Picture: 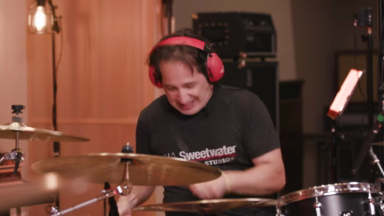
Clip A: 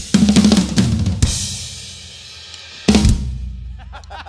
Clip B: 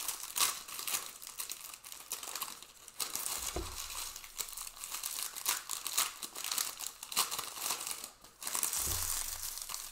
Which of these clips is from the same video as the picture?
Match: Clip A